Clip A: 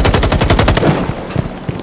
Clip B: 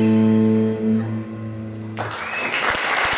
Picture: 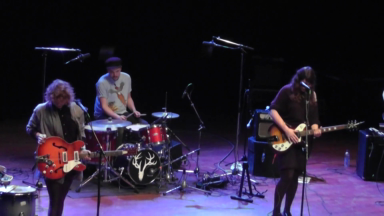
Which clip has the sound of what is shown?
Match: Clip B